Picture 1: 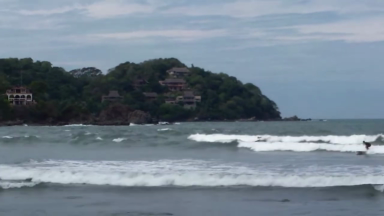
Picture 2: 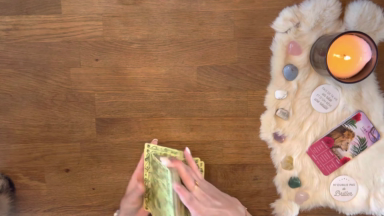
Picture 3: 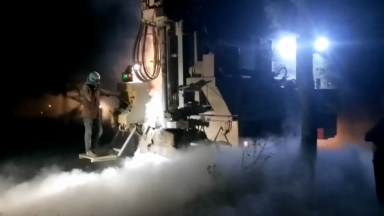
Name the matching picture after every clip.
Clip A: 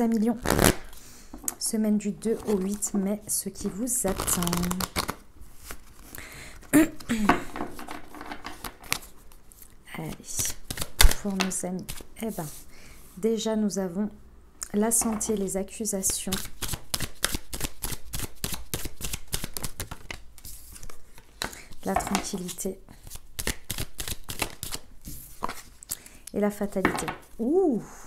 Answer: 2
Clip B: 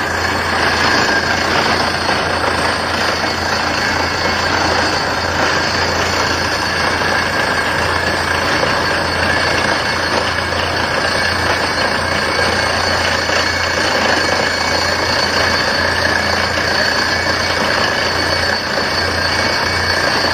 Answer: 3